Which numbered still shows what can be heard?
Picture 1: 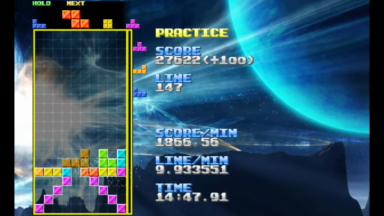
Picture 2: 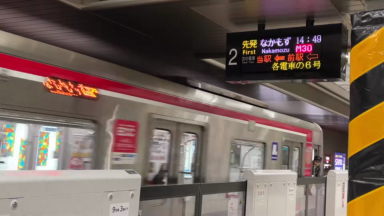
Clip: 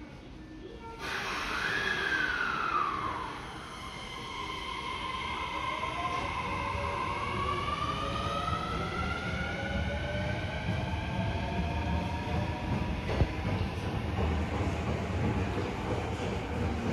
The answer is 2